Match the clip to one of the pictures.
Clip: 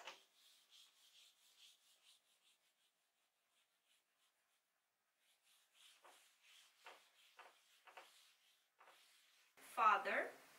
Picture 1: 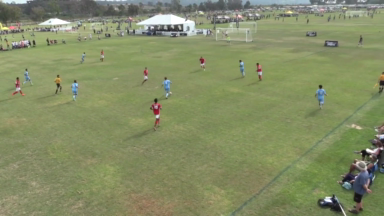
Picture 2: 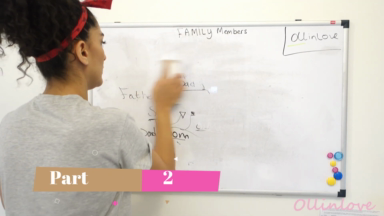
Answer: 2